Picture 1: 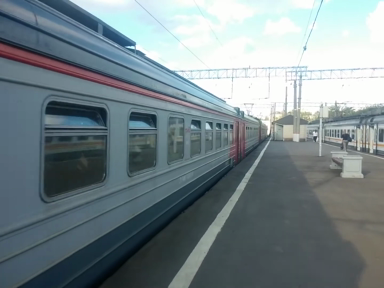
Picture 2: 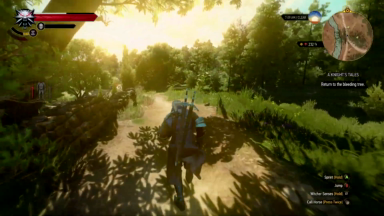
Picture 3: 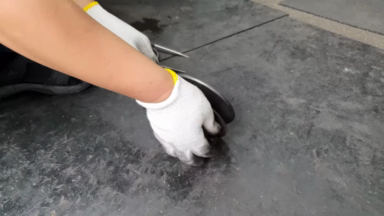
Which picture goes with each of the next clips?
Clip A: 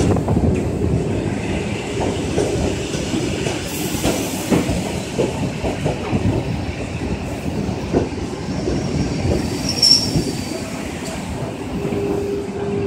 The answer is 1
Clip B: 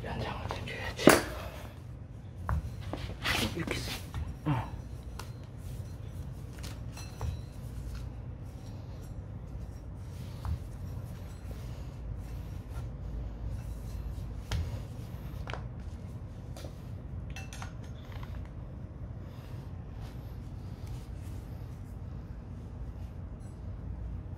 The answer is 3